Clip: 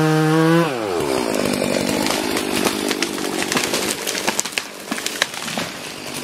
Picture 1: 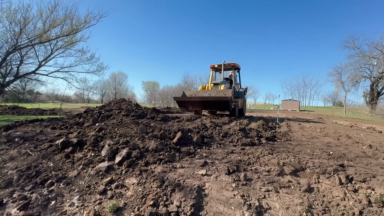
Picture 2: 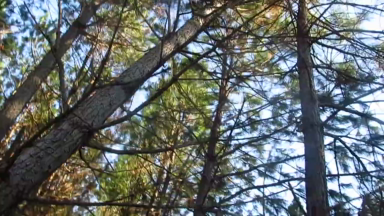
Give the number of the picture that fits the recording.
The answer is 2